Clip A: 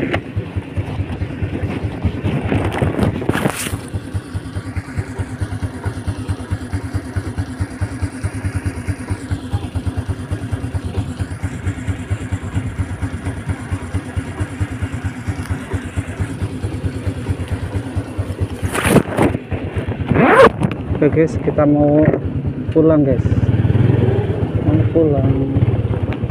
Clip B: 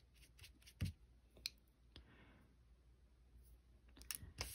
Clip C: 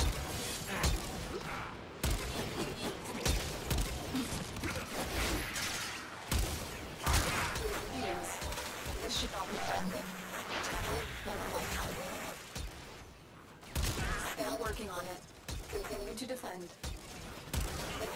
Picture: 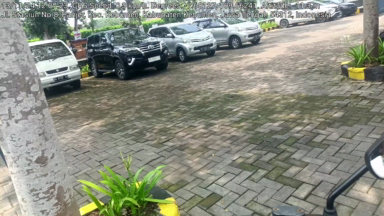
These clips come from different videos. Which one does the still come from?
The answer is A